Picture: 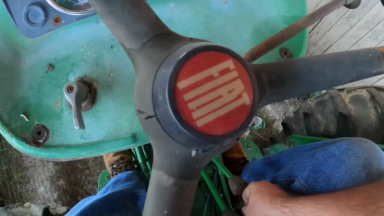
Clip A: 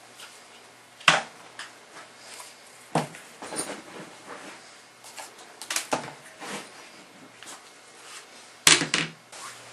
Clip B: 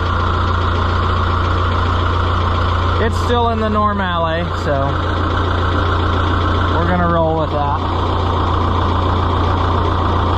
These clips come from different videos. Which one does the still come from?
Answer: B